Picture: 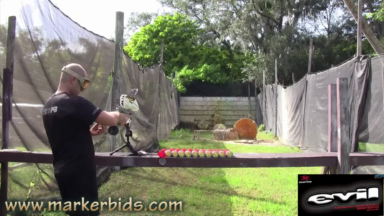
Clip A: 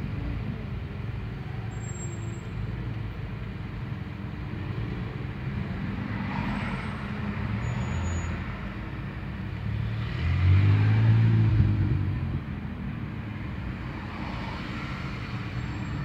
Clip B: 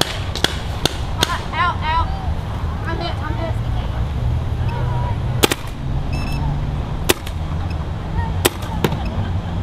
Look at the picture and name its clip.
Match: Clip B